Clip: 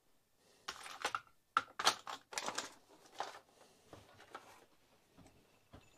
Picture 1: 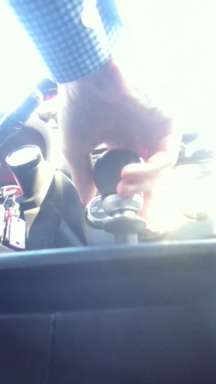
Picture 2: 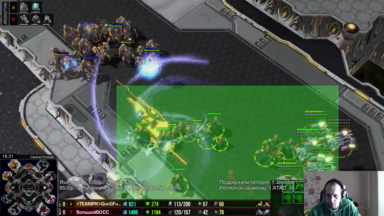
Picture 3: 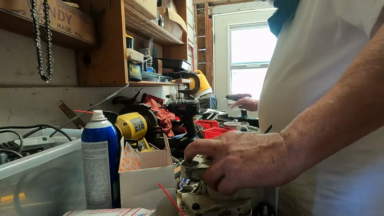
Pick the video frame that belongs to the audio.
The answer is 3